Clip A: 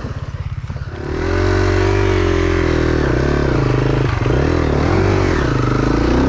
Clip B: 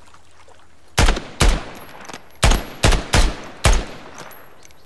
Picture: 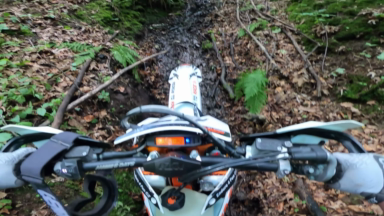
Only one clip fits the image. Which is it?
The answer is A